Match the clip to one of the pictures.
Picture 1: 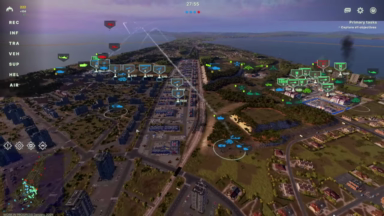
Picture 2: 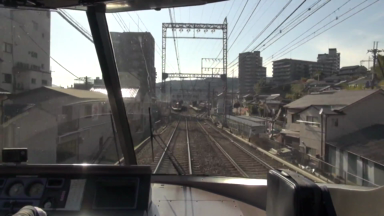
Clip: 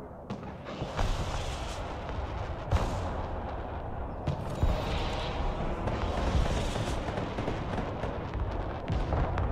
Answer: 1